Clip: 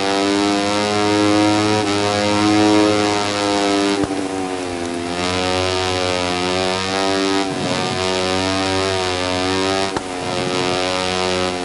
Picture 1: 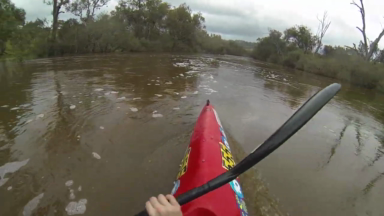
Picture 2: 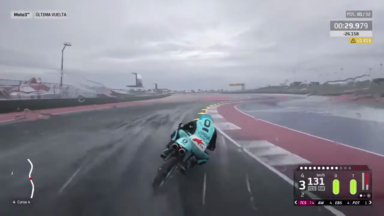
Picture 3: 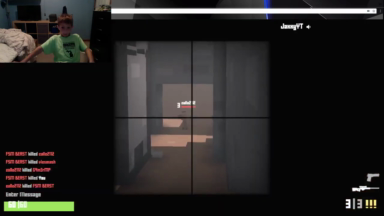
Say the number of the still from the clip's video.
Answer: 2